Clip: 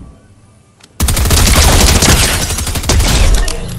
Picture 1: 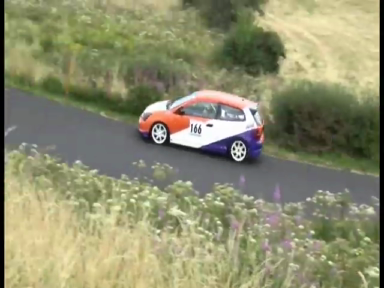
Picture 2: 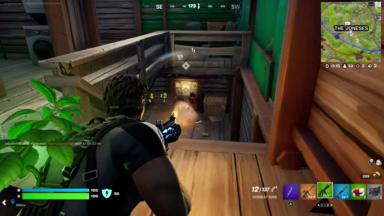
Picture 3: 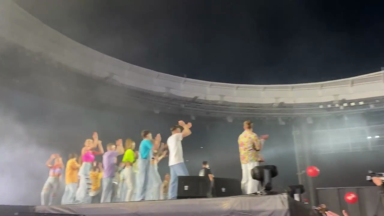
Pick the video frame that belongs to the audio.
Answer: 2